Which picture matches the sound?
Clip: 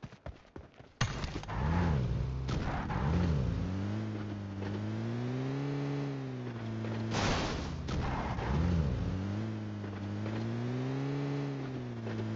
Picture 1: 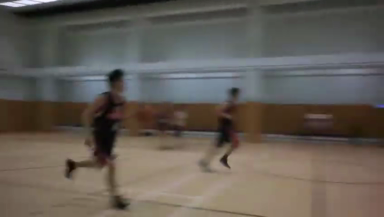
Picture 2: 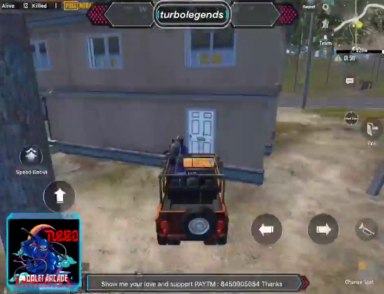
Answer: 2